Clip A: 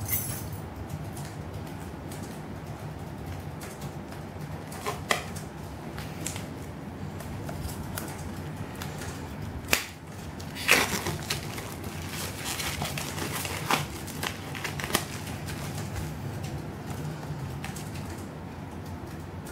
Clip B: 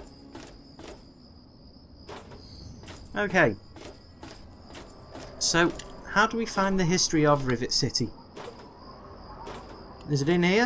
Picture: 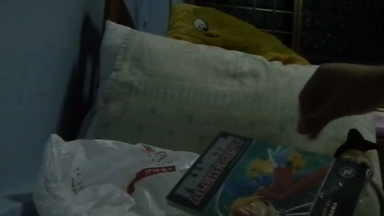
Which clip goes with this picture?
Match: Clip A